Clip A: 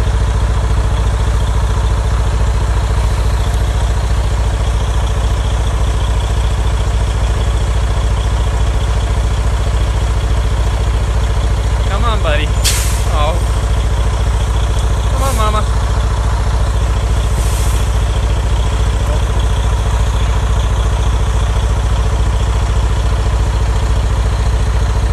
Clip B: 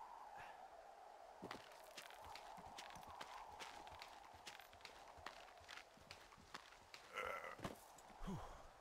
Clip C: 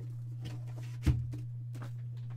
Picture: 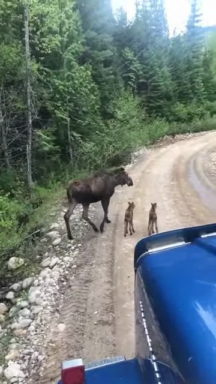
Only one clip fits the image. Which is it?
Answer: A